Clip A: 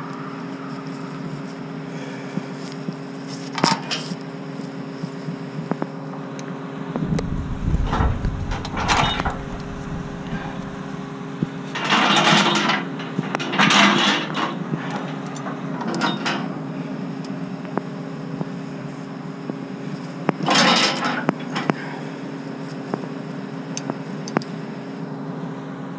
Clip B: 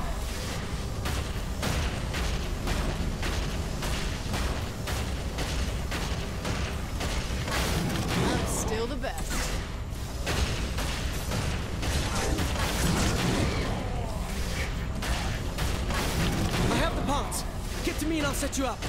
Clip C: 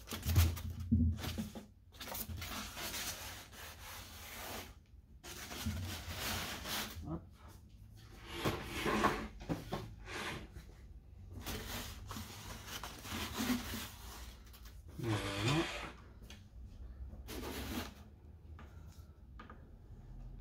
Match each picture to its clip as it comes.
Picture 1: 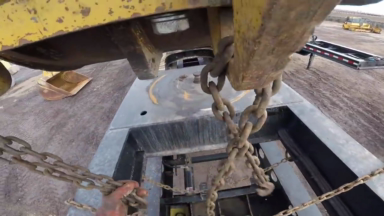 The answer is A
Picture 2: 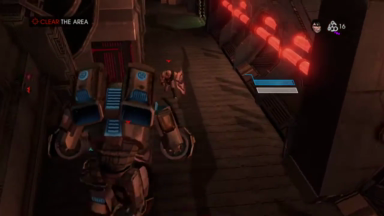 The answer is B